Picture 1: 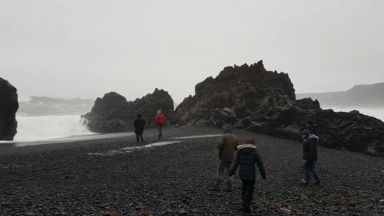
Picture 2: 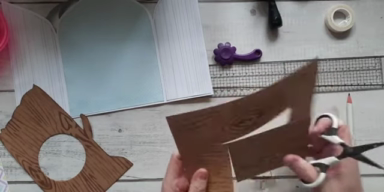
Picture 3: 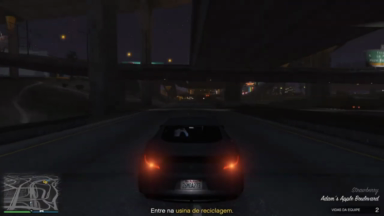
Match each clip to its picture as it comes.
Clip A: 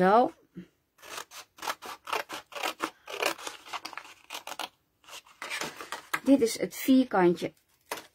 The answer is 2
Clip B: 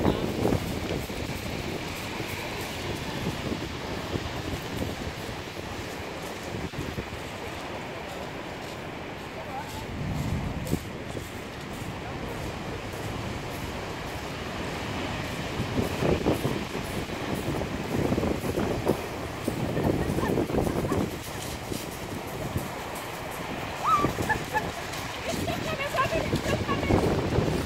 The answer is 1